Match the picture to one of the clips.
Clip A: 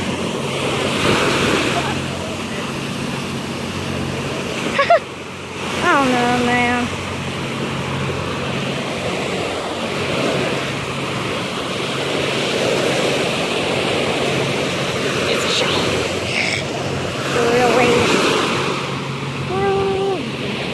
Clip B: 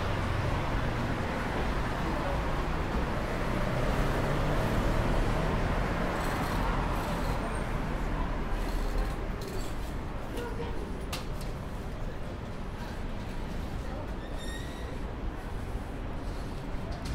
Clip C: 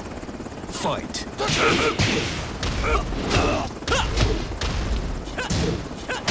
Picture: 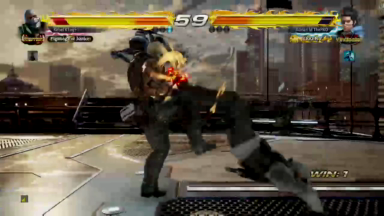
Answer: C